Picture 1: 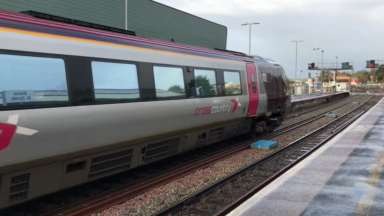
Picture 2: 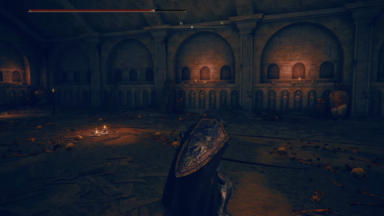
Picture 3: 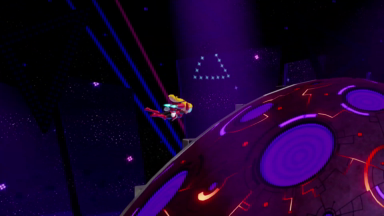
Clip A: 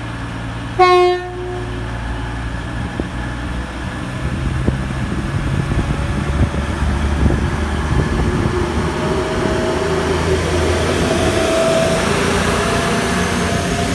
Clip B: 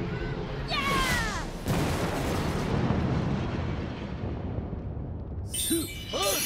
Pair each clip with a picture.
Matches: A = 1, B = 3